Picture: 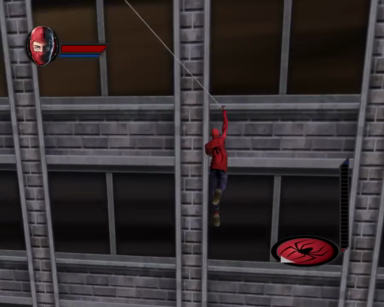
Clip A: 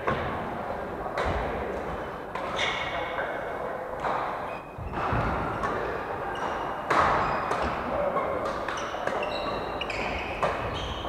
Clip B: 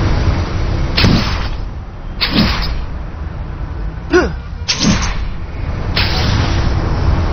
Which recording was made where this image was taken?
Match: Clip B